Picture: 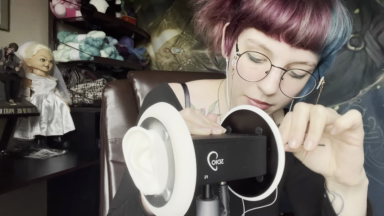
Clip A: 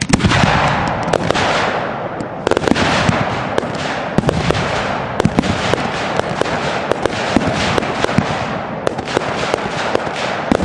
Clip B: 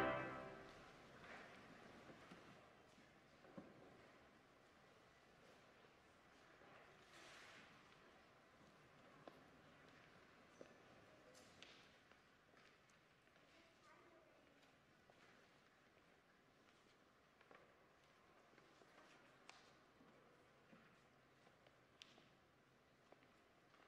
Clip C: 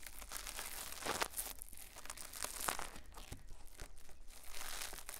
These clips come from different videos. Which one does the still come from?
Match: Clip C